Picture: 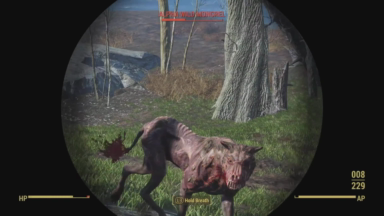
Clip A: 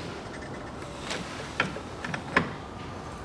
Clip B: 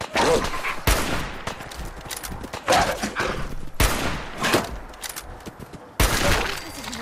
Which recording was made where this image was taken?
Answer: B